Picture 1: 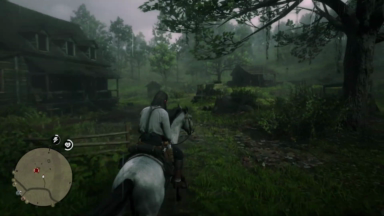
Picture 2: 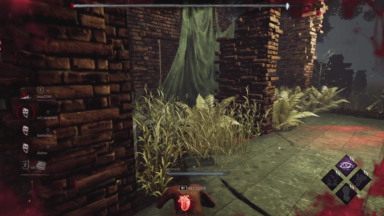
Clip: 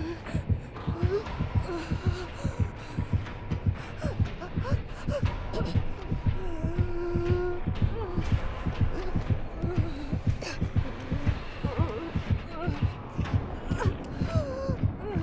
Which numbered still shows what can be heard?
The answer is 2